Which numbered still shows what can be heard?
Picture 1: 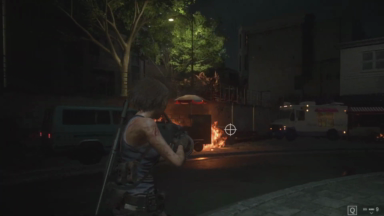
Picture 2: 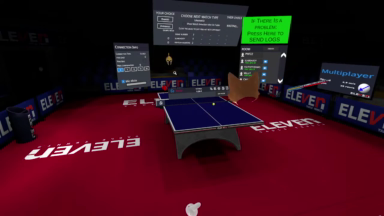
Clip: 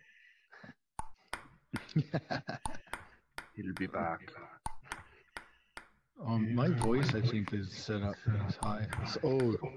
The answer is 2